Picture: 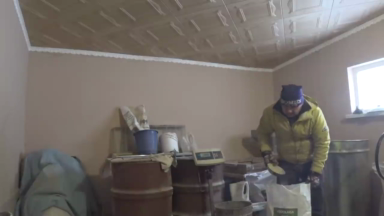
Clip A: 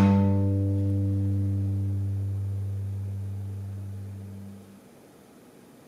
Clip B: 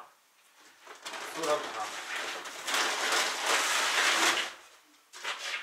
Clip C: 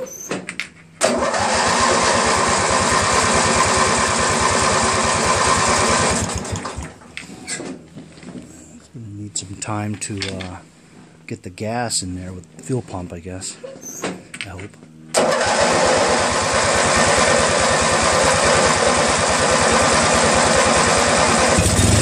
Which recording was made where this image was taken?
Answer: B